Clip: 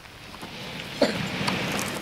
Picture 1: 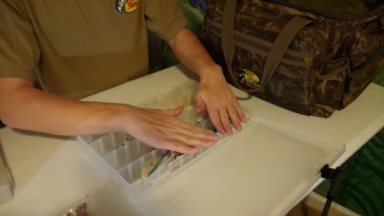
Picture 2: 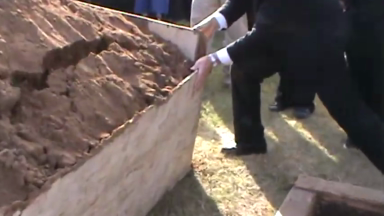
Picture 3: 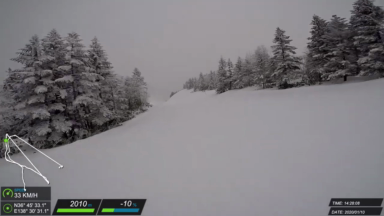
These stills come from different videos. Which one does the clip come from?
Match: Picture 2